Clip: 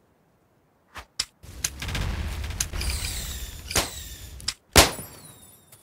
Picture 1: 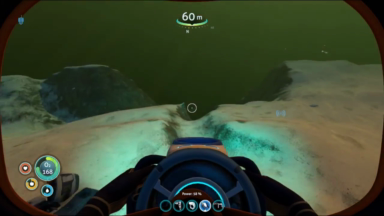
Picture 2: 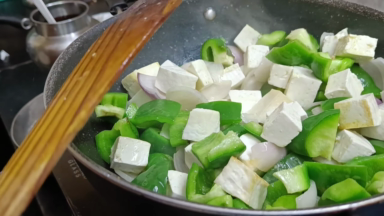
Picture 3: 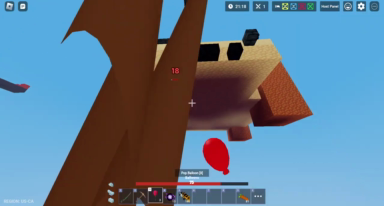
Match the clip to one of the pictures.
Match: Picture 3